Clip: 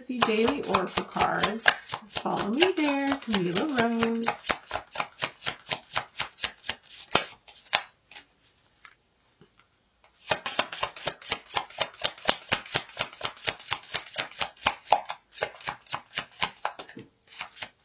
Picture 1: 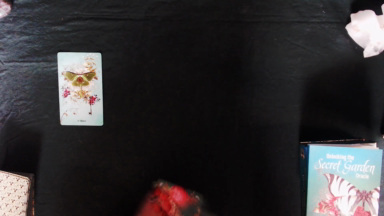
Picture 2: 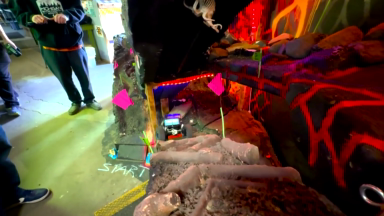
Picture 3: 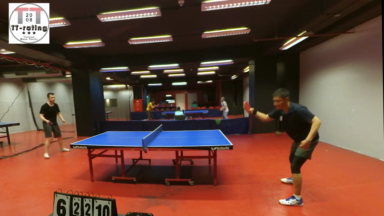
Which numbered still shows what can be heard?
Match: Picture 1